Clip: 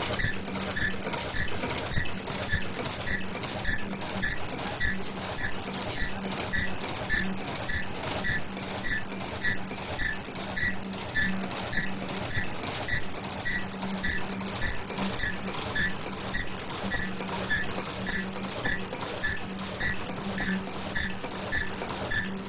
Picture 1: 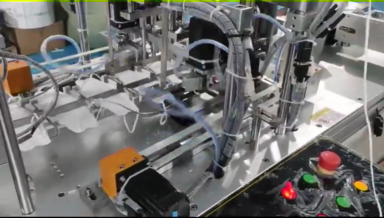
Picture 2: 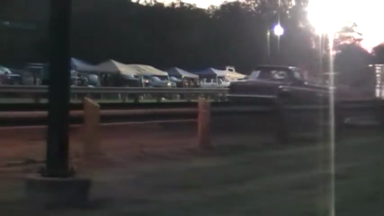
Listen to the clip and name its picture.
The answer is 1